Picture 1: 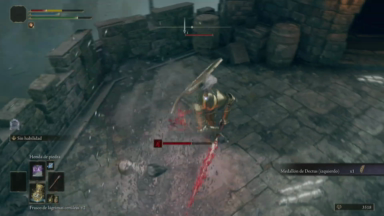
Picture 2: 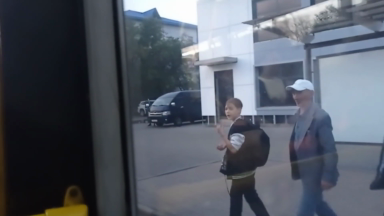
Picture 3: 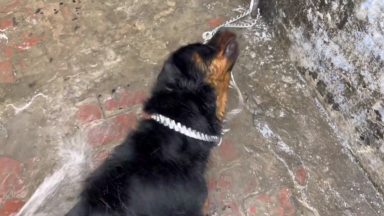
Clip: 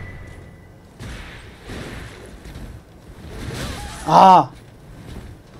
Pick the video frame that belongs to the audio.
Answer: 1